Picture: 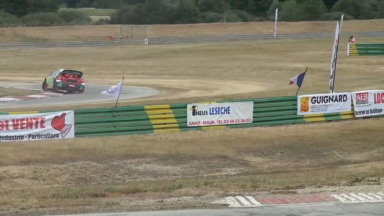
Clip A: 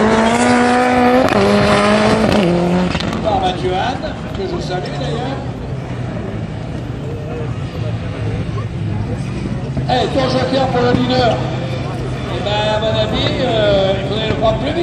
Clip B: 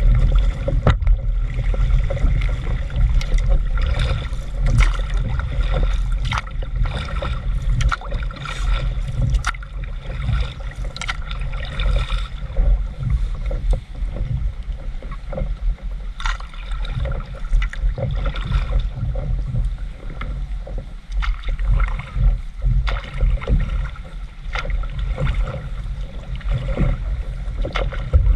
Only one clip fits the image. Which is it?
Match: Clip A